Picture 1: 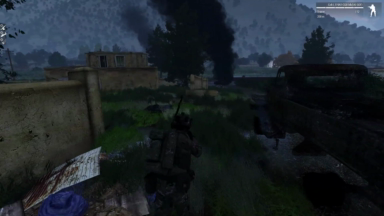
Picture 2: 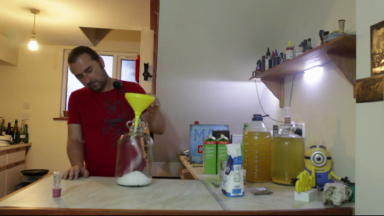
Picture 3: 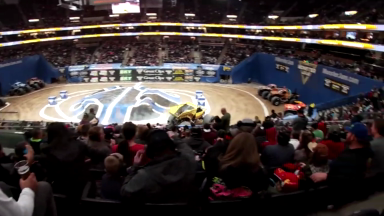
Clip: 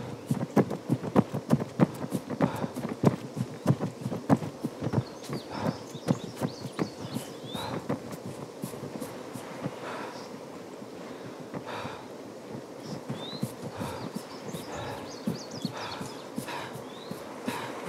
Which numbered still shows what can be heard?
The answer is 1